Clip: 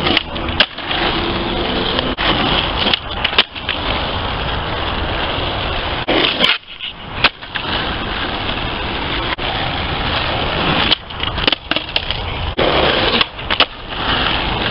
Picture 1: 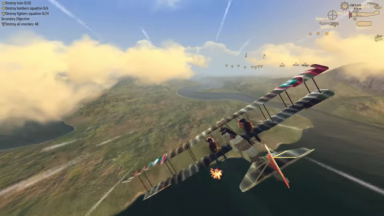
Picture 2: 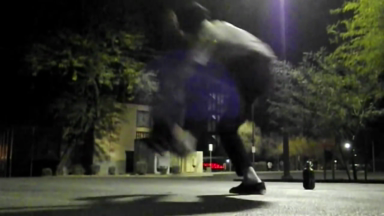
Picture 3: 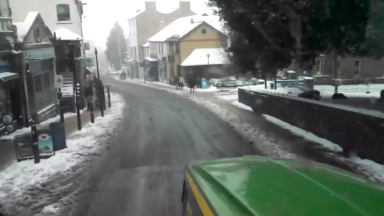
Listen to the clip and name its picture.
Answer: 2